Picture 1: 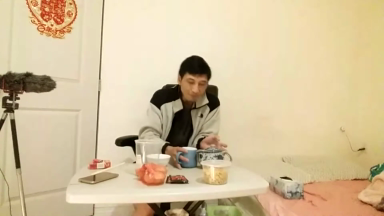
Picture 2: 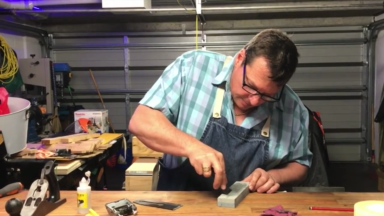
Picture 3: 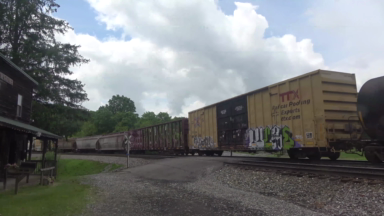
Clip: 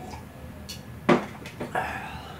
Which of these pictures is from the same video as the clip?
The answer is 1